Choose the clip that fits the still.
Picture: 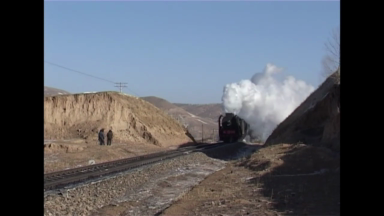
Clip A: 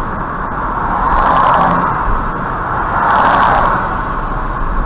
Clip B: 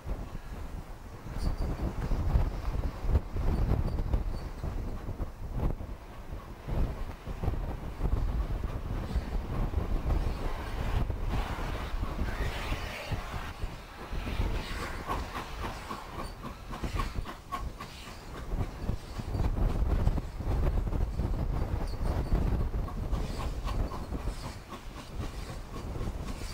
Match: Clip B